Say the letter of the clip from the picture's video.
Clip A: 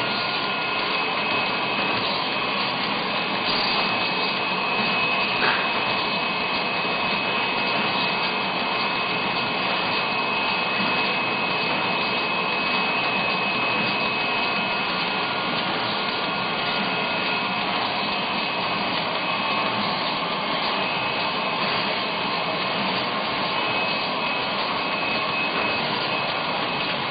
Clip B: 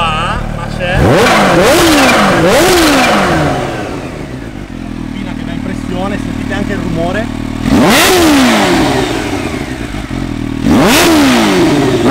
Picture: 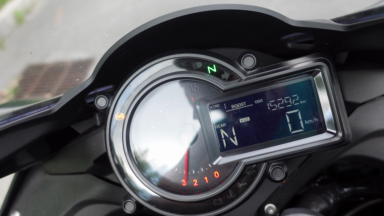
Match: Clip B